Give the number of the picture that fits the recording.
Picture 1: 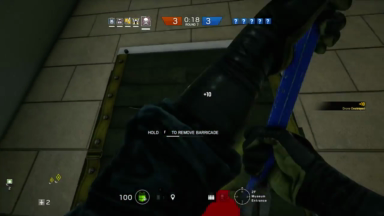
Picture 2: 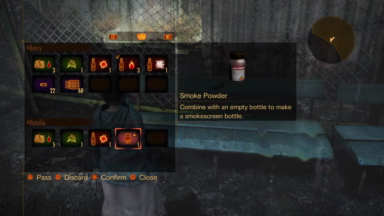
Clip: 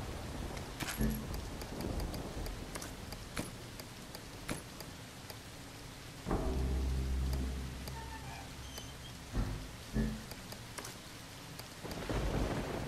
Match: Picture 2